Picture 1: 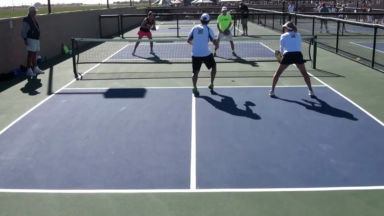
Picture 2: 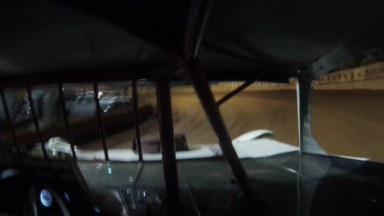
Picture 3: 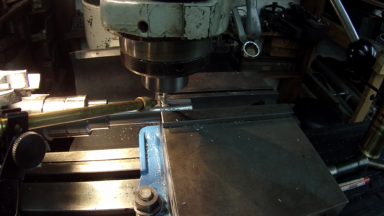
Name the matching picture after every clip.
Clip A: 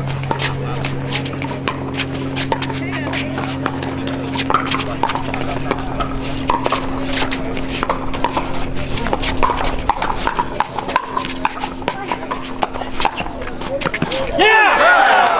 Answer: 1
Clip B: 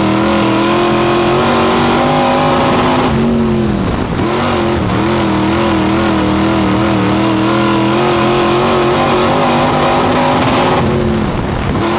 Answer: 2